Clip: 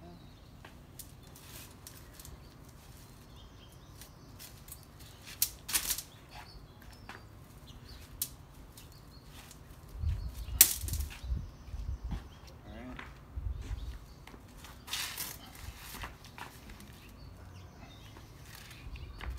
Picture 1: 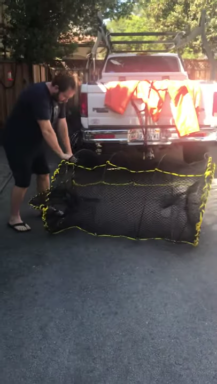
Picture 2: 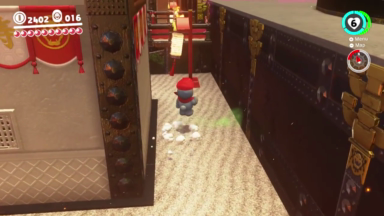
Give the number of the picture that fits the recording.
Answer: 1